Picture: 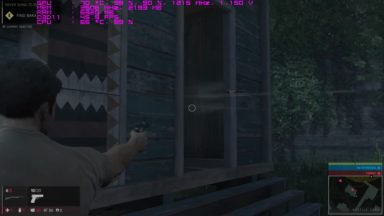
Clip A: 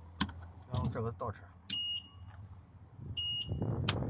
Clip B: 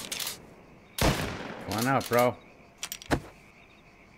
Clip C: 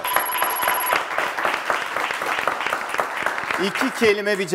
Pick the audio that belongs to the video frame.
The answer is B